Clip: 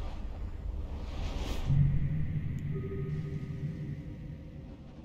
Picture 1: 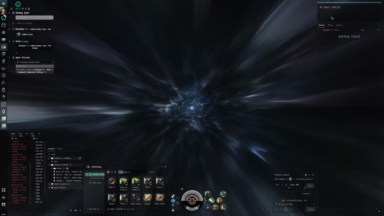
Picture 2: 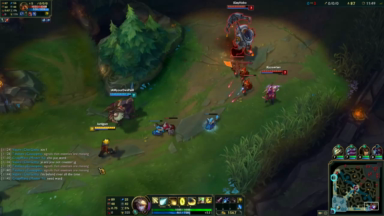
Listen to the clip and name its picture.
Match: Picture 1